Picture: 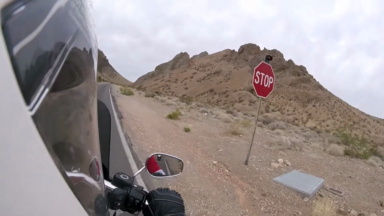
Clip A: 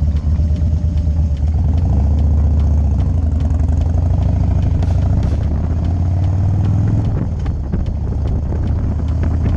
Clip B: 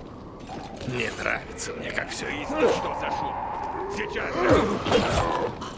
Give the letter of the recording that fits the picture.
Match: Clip A